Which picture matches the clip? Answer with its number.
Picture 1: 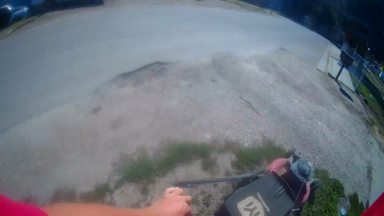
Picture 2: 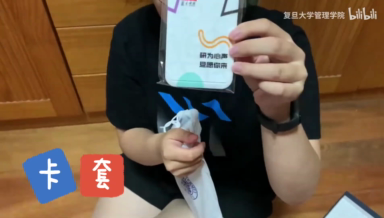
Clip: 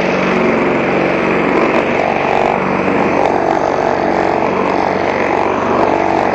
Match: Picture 1